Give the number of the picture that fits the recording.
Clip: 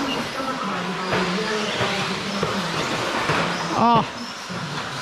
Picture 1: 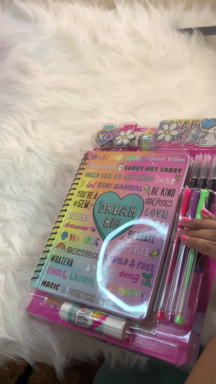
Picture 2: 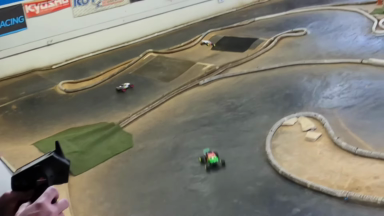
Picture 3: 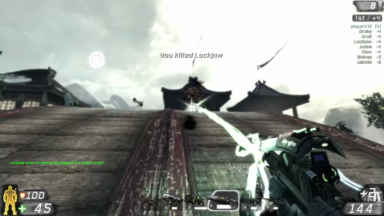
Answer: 2